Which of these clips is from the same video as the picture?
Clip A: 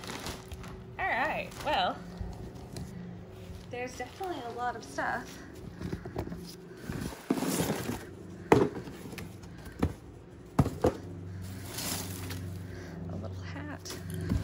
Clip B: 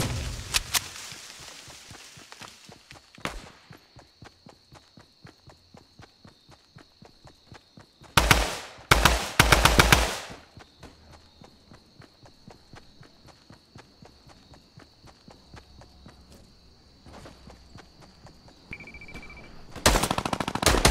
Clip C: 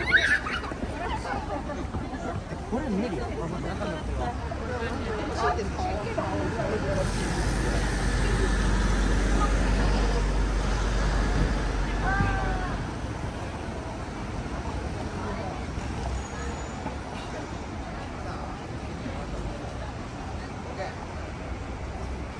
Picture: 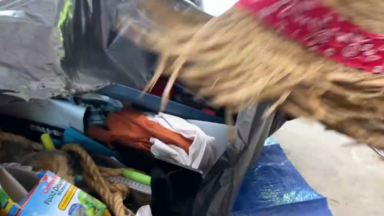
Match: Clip A